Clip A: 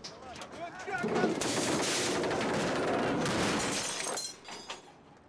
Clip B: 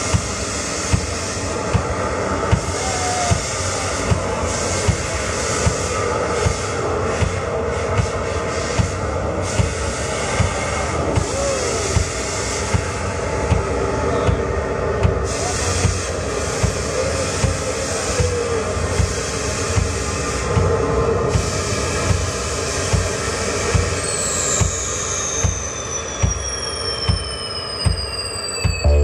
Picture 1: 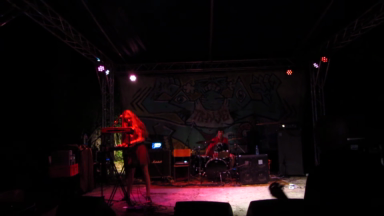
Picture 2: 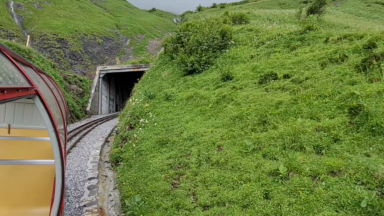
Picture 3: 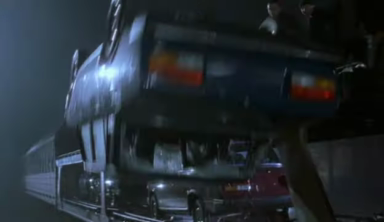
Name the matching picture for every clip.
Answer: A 3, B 1